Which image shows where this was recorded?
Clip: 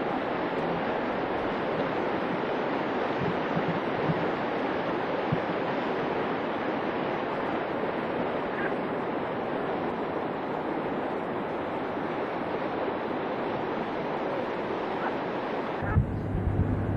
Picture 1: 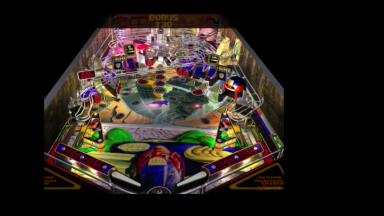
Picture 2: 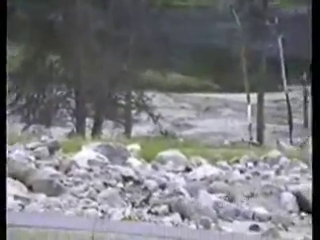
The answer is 2